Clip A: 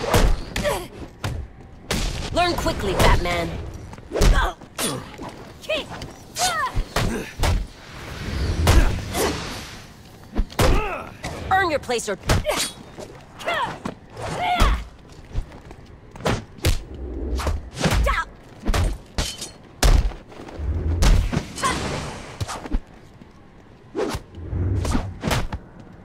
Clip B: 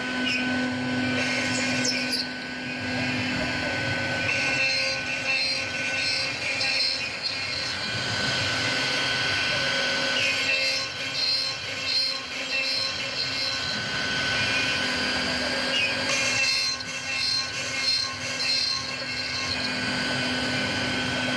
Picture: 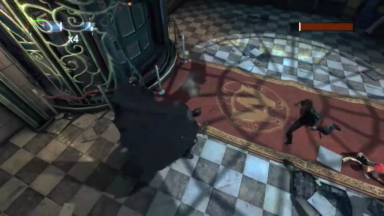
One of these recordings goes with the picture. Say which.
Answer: A